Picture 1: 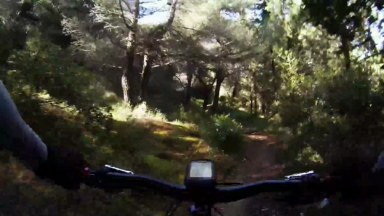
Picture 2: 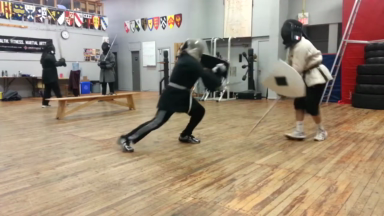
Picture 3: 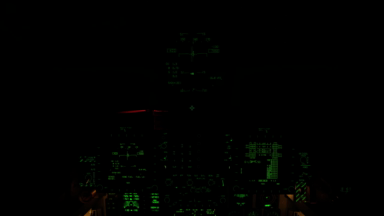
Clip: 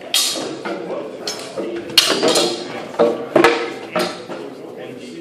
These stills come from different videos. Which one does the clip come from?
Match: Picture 2